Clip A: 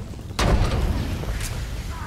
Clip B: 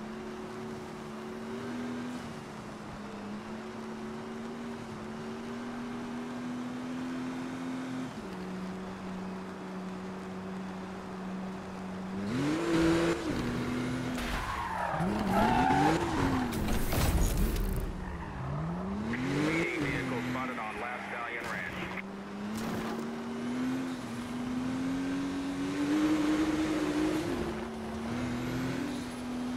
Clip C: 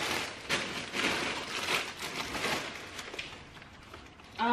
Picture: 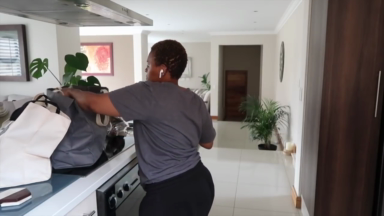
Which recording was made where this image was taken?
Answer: C